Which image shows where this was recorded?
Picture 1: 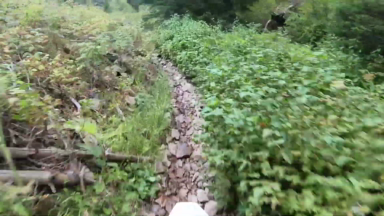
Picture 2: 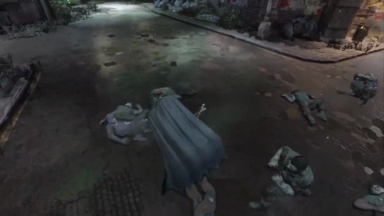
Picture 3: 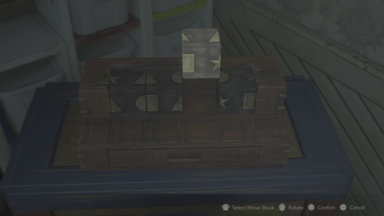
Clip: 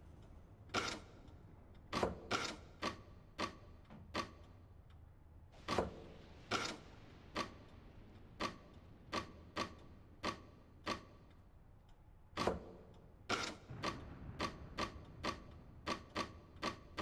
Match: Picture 3